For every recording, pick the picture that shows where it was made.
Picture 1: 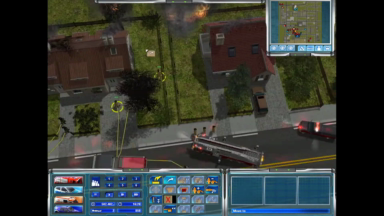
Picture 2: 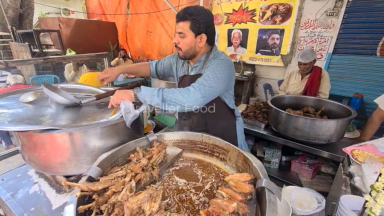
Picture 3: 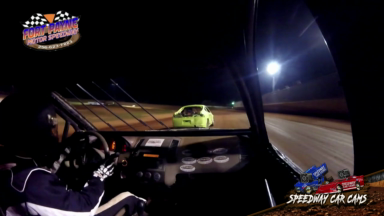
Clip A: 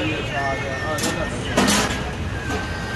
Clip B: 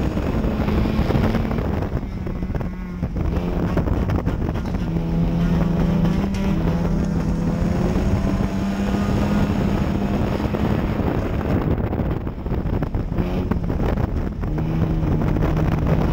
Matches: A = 2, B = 3